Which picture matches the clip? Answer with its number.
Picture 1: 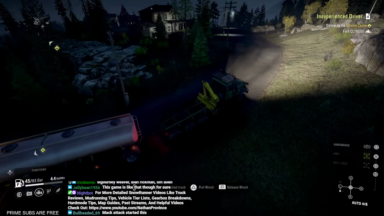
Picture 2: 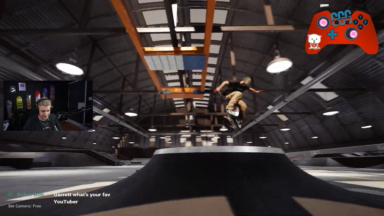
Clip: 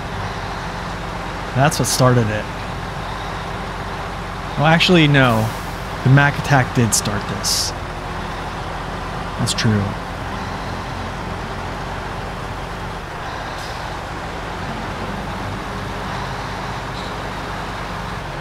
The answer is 1